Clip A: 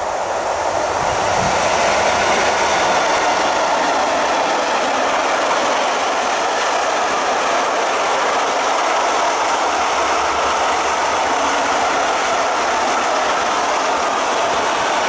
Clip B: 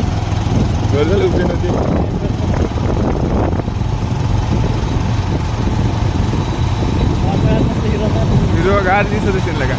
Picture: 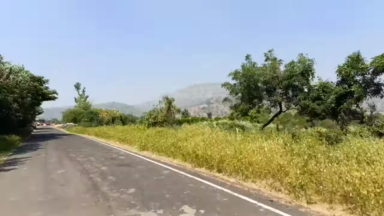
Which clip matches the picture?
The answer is B